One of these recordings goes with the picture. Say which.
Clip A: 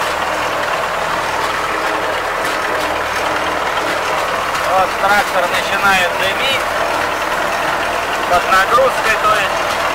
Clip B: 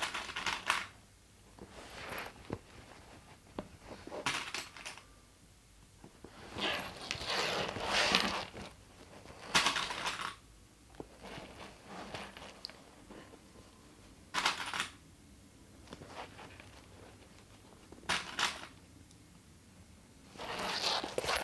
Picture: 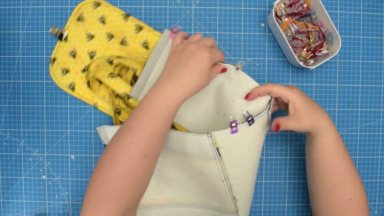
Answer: B